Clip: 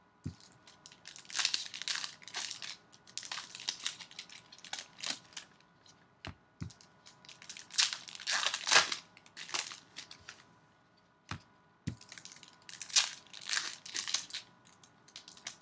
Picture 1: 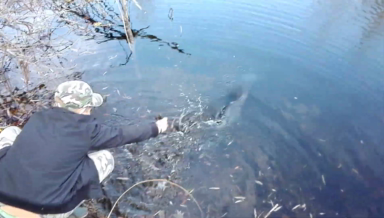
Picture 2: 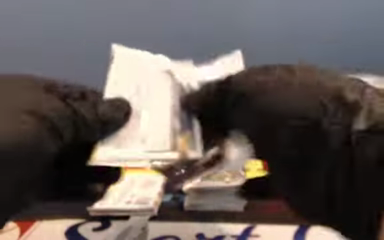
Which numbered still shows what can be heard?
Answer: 2